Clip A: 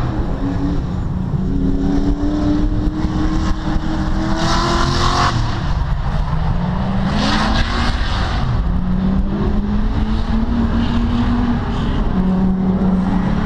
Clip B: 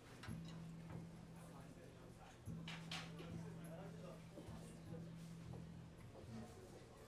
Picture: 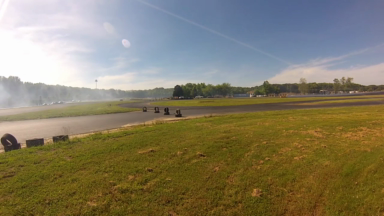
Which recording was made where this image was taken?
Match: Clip A